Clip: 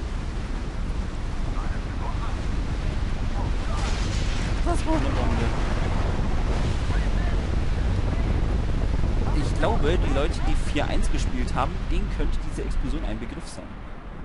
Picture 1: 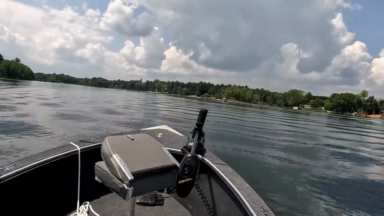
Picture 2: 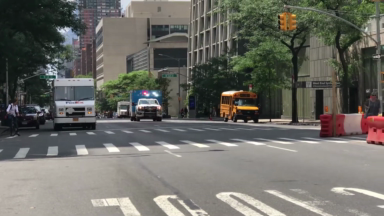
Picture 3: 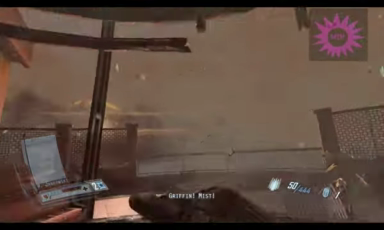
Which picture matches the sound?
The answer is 3